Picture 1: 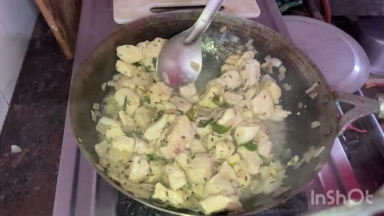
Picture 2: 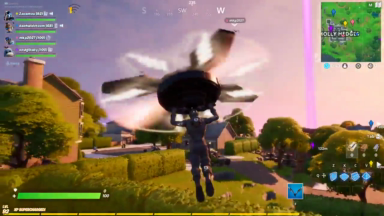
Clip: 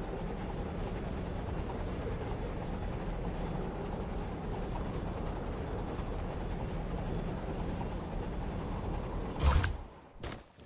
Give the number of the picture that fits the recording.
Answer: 2